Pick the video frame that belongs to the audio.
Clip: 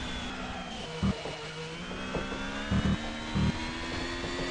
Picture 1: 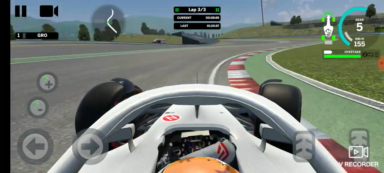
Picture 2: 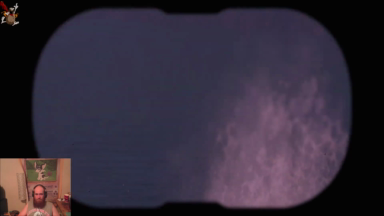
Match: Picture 1